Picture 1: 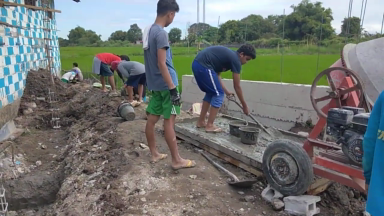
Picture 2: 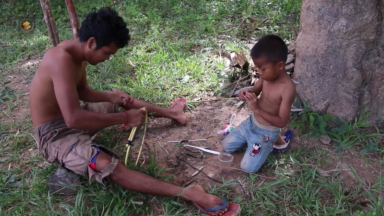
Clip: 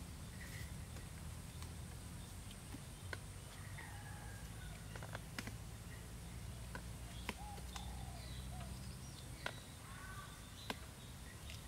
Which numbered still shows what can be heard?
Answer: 2